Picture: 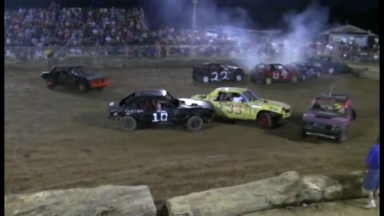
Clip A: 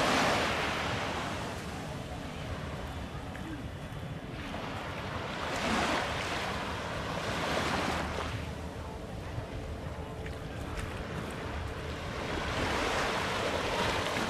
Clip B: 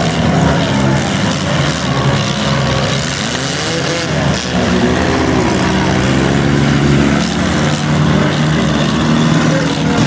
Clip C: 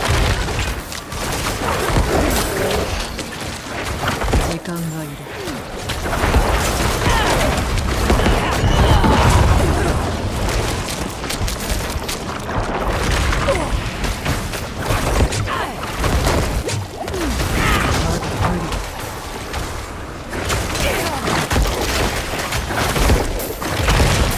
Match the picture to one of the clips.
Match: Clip B